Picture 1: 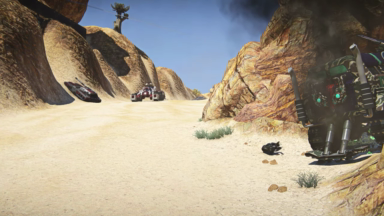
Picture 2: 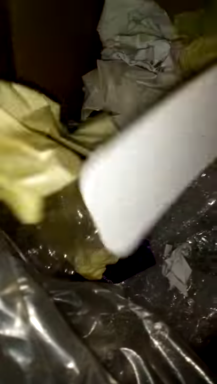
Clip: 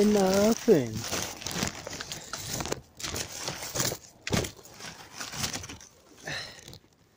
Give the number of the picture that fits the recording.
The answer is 2